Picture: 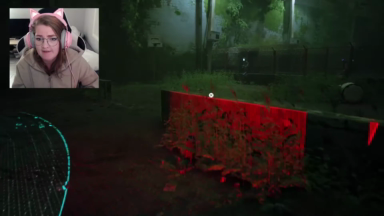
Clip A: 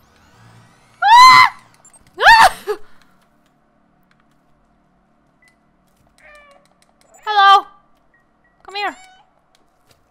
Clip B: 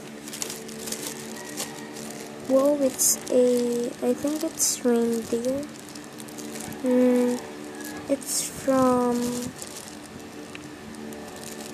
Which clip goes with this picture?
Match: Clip A